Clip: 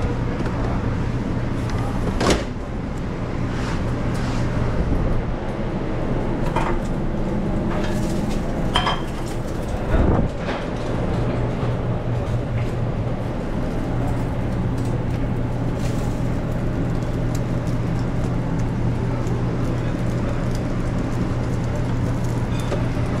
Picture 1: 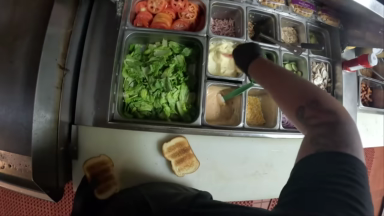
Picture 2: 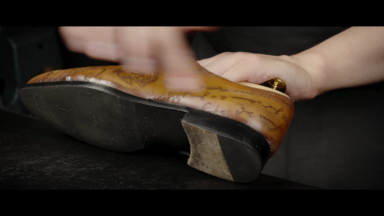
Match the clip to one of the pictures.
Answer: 1